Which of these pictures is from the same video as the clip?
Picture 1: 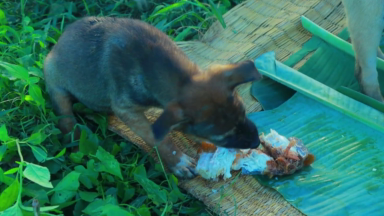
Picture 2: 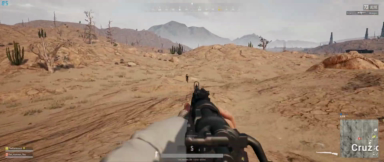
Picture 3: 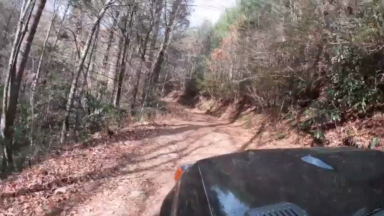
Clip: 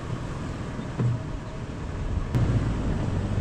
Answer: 3